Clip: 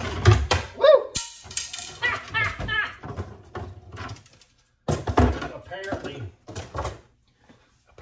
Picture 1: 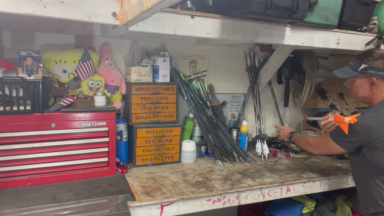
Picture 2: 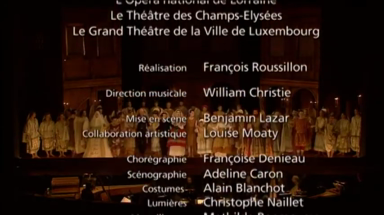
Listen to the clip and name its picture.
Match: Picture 1